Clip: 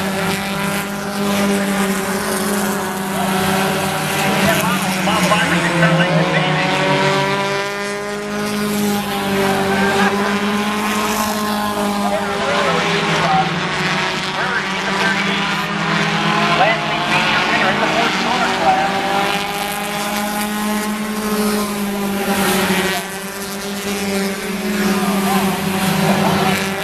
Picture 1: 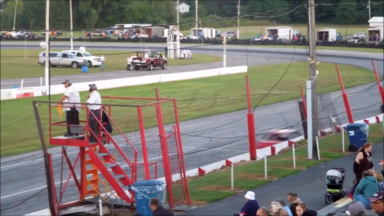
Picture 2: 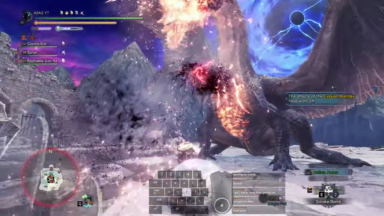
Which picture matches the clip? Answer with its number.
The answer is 1